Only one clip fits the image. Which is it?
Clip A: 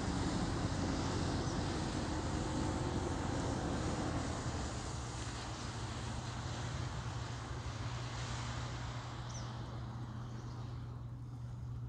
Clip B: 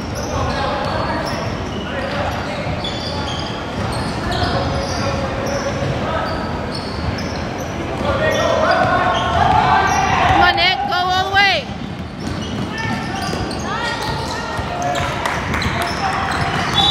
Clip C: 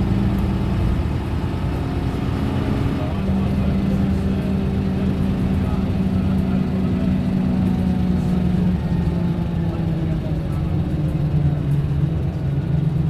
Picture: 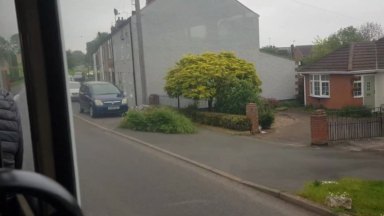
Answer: C